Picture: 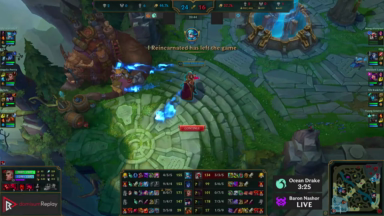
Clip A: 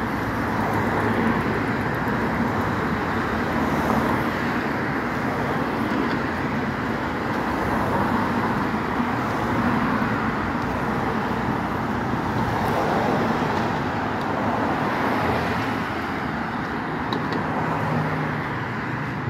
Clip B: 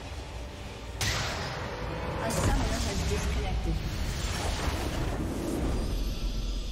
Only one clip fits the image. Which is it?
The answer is B